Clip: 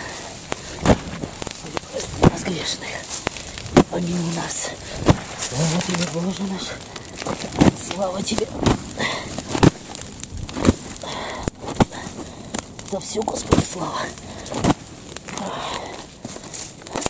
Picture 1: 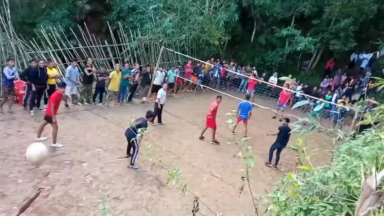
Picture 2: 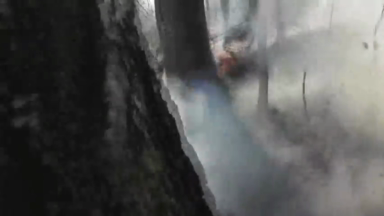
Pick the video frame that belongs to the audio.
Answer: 2